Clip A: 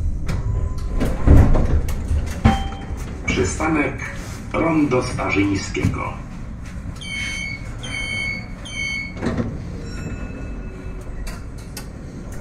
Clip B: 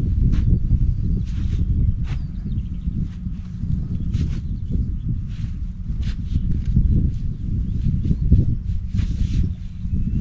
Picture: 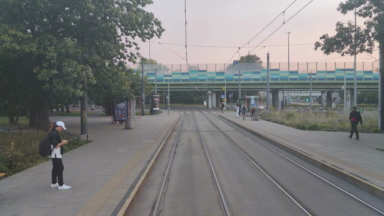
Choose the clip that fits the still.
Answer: A